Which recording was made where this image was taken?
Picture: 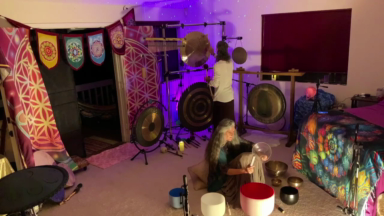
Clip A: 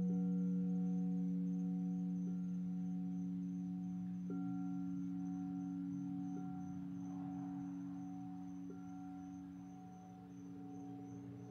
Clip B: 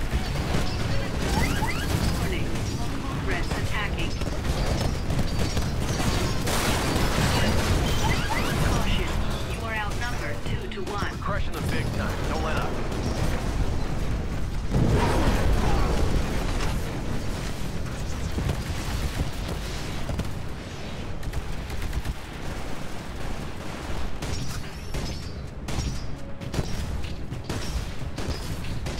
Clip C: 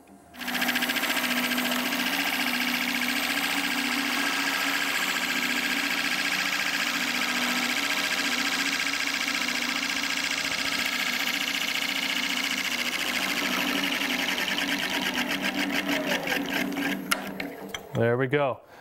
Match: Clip A